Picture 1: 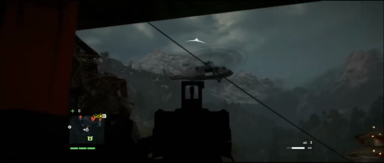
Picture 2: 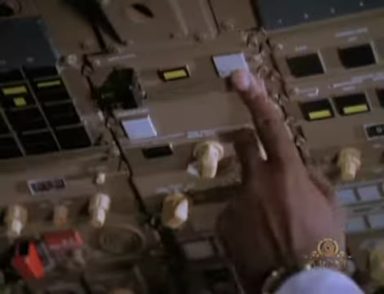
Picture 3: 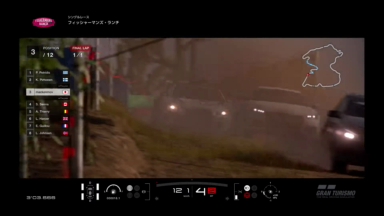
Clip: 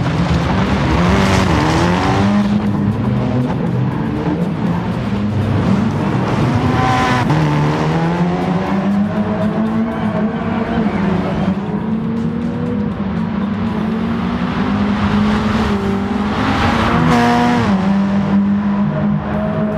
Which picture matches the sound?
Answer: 3